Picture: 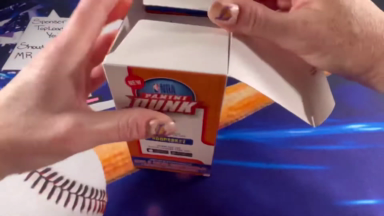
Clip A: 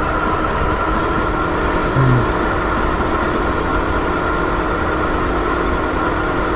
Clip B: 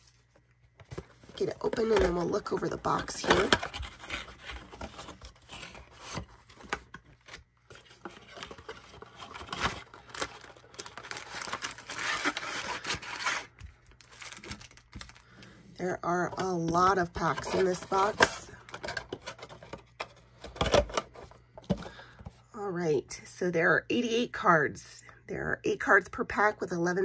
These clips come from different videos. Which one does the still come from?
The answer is B